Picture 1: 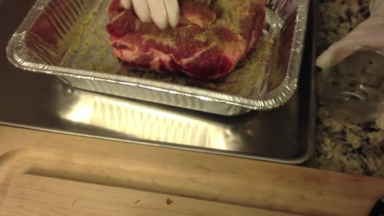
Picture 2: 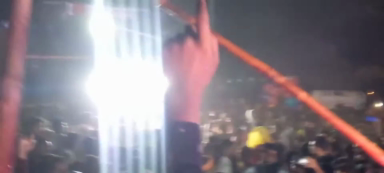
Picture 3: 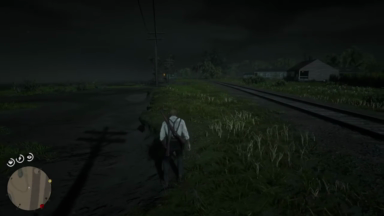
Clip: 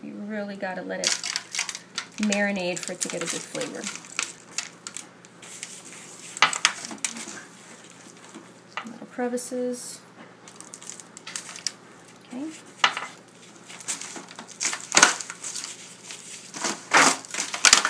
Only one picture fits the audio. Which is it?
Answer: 1